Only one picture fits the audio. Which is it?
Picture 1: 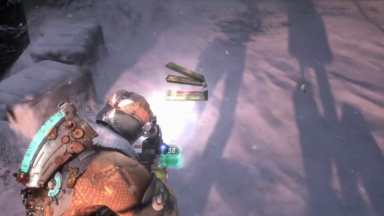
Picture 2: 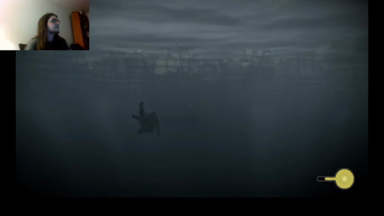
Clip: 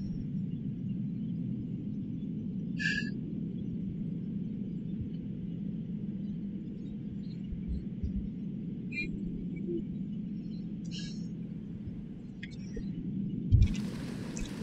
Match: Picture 2